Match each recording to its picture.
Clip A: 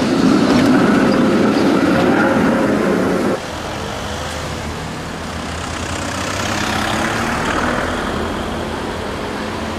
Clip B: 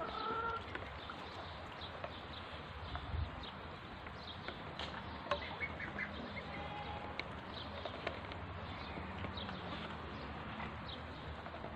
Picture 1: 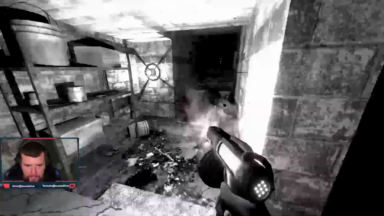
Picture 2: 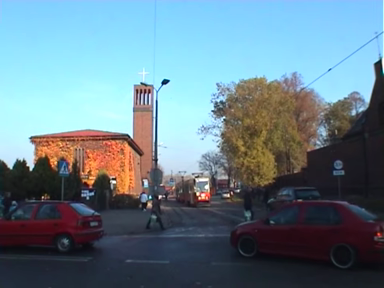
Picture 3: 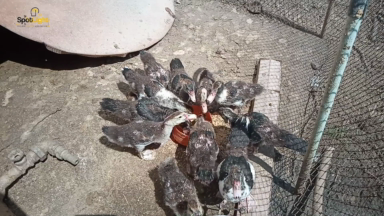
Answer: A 2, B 3